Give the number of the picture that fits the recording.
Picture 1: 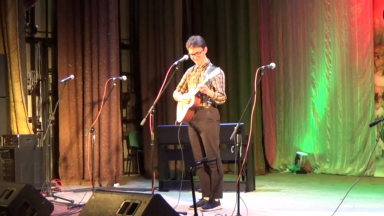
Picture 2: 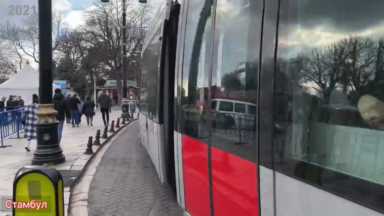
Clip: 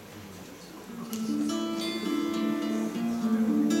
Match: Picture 1